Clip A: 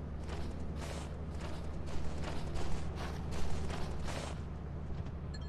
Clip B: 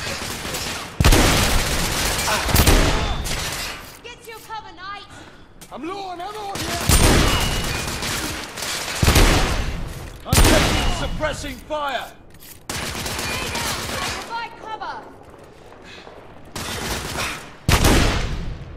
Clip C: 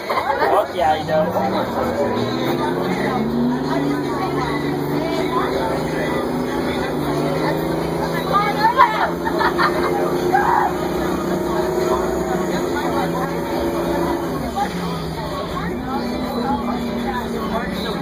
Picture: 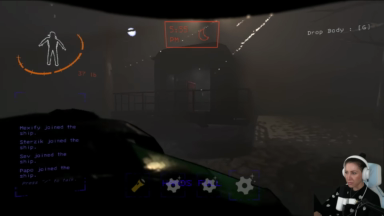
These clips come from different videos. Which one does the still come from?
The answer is A